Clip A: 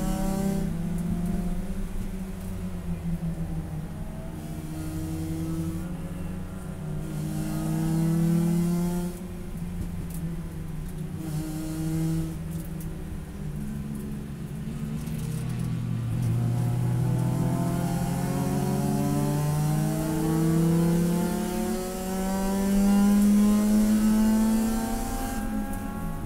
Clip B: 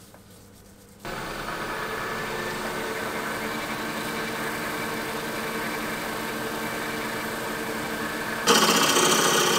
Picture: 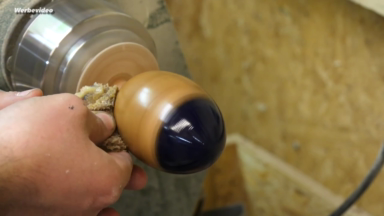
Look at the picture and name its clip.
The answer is B